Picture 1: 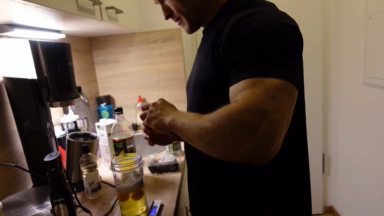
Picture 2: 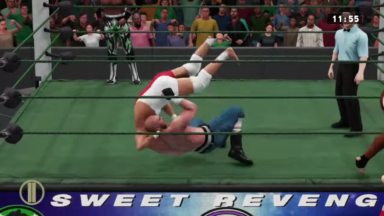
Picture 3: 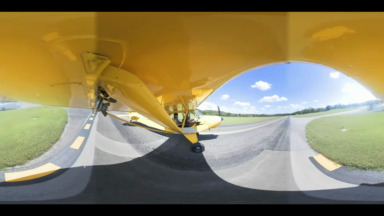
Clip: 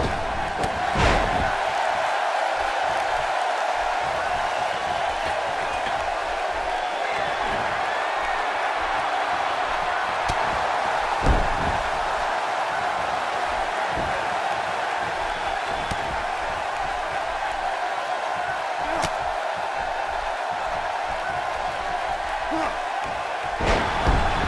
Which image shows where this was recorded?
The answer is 2